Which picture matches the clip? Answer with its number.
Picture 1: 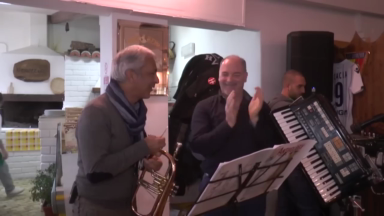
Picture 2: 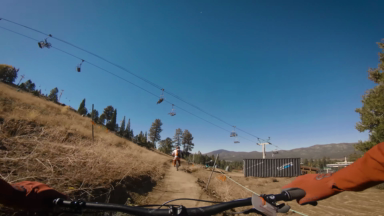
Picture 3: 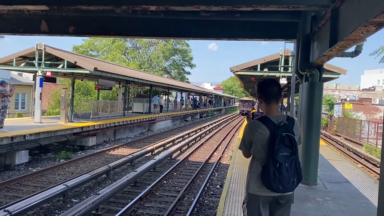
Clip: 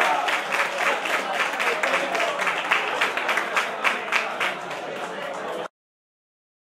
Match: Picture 1